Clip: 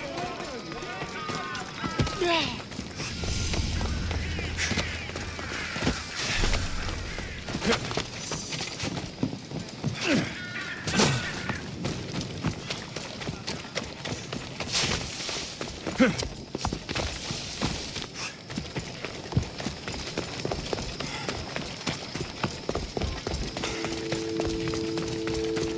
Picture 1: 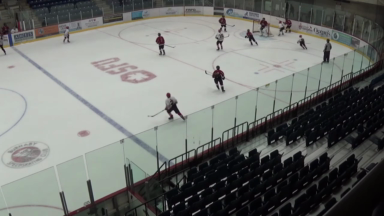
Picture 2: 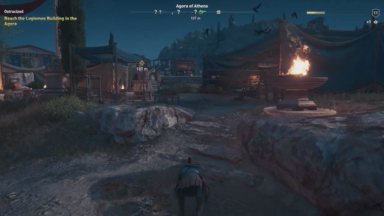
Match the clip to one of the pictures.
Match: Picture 2